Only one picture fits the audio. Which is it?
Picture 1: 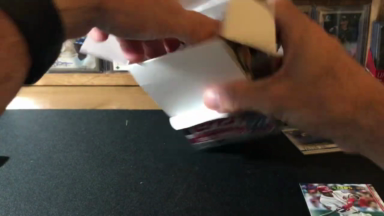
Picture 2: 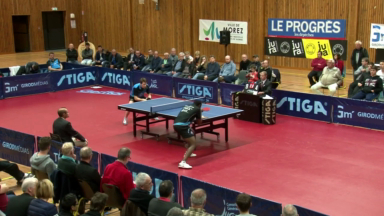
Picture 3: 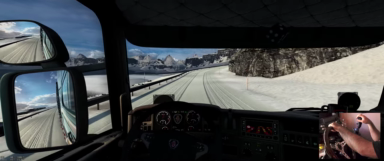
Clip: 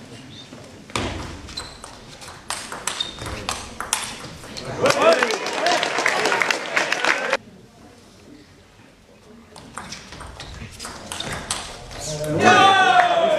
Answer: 2